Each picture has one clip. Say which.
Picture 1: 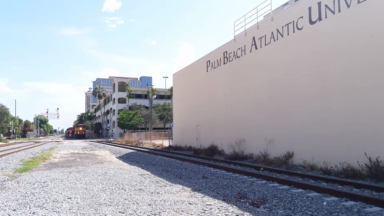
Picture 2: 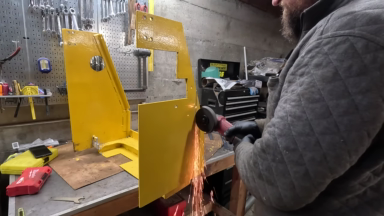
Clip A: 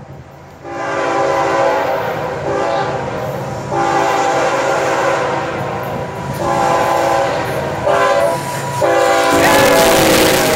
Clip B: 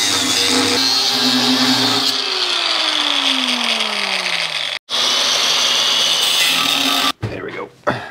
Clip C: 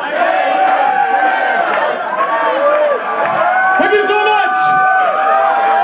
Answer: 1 A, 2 B